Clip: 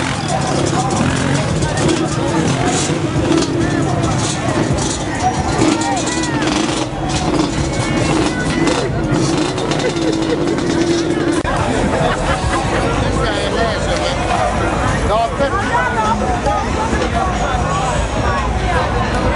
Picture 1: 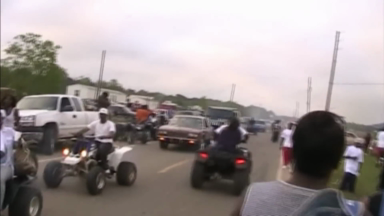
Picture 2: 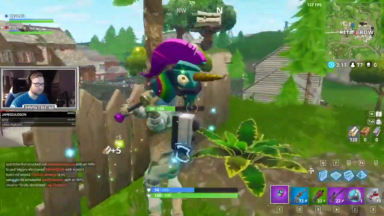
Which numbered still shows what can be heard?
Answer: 1